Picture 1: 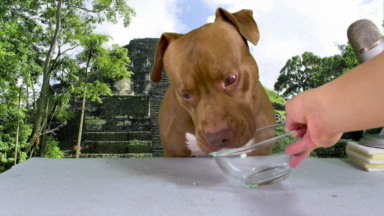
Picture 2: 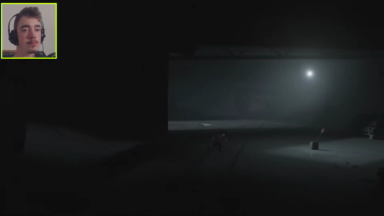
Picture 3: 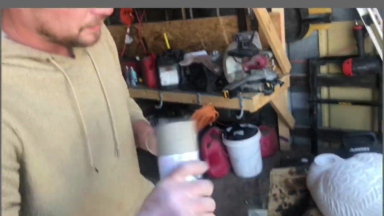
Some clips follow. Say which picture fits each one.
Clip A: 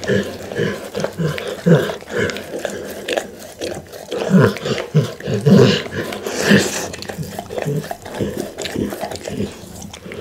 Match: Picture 1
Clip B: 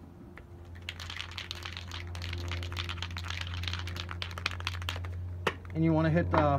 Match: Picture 3